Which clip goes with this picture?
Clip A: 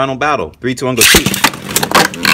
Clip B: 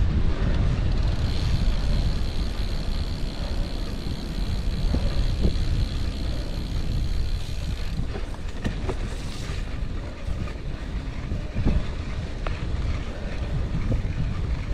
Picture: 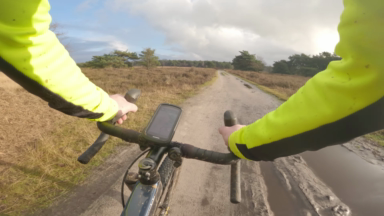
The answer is B